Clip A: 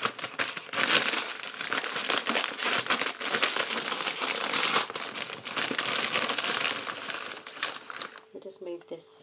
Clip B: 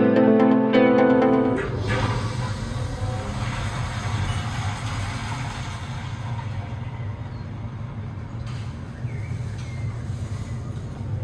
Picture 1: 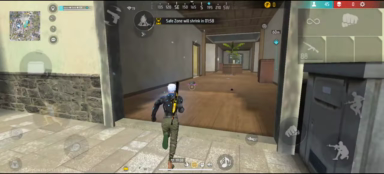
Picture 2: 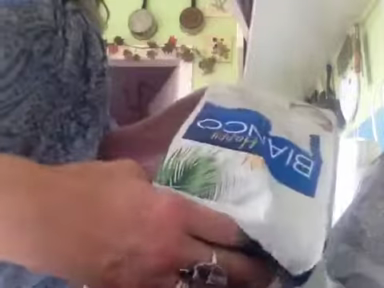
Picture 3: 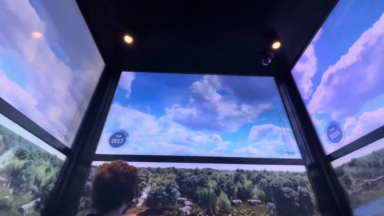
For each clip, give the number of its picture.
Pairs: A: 2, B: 3